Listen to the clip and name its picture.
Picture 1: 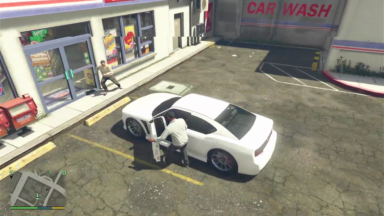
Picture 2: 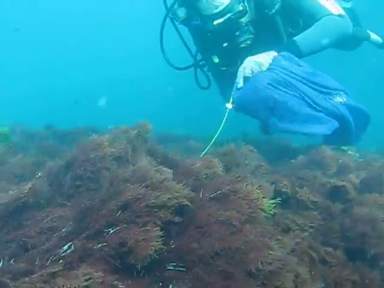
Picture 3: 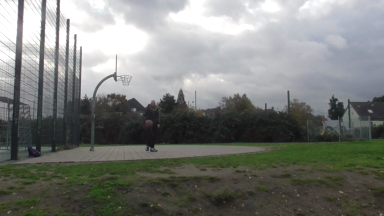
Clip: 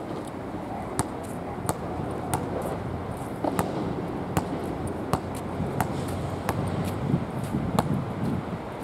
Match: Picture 3